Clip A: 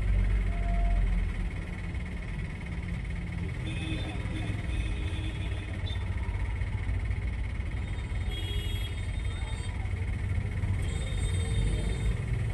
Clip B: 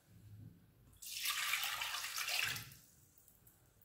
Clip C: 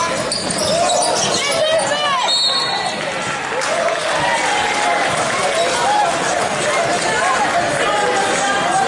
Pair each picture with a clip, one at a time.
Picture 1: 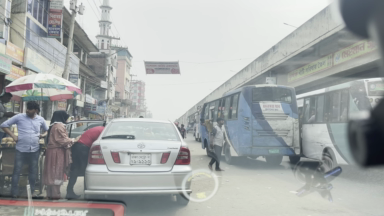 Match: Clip A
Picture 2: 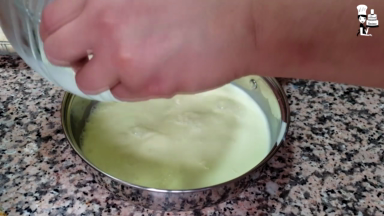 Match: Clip B